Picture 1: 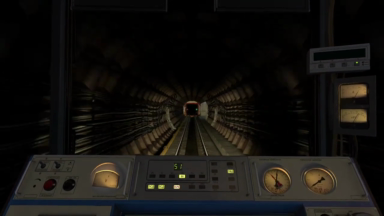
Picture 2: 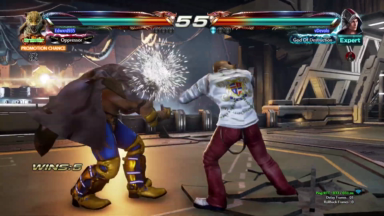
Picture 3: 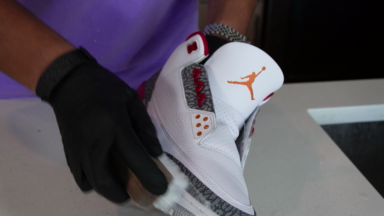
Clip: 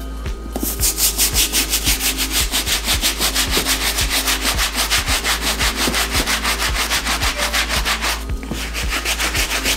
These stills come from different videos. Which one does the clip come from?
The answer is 3